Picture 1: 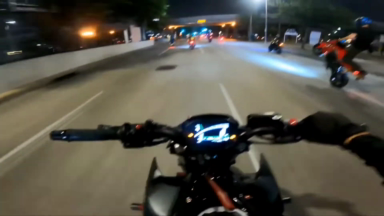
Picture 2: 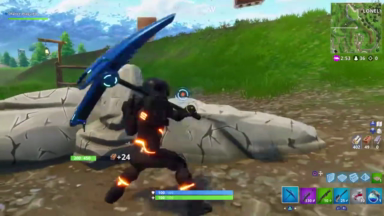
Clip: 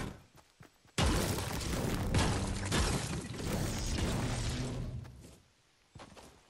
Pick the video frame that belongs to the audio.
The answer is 2